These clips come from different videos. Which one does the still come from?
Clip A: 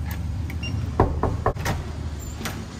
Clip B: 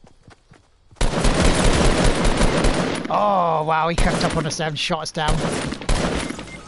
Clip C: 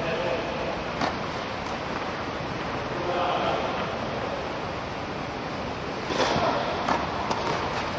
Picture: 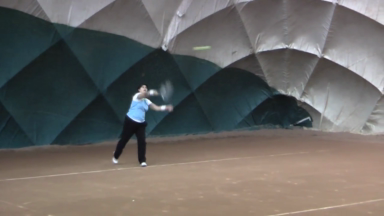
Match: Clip C